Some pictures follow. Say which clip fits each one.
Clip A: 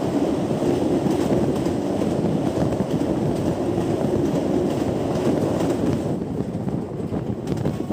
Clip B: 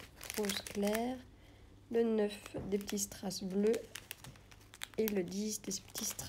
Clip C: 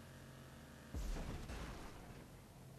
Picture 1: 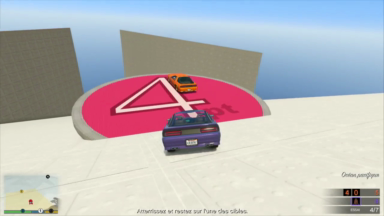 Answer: C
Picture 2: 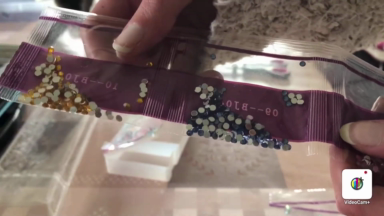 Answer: B